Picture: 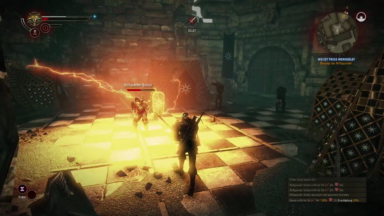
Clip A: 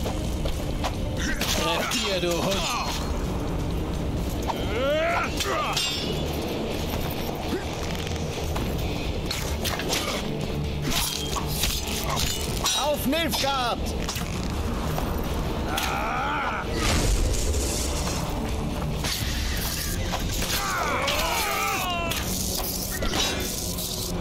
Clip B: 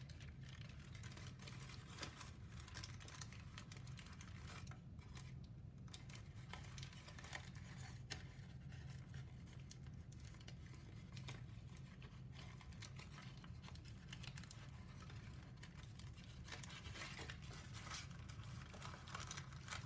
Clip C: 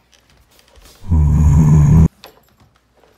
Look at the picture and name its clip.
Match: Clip A